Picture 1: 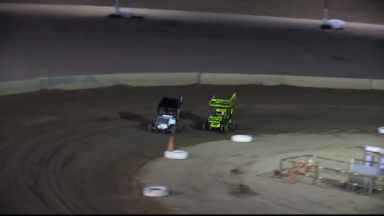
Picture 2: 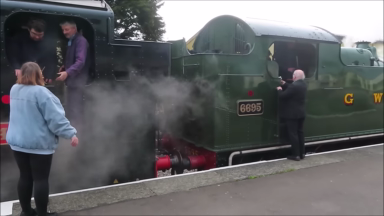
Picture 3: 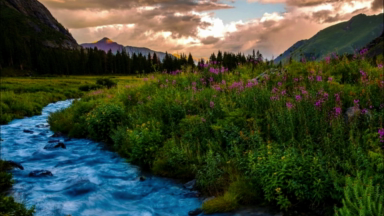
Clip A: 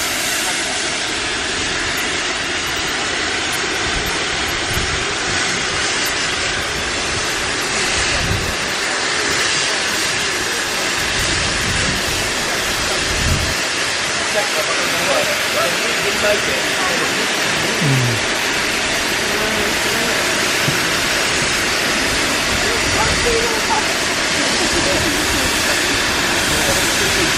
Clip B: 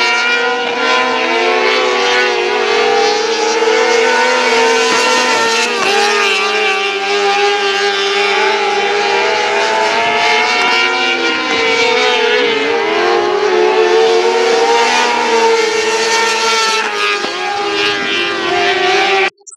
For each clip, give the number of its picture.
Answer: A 2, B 1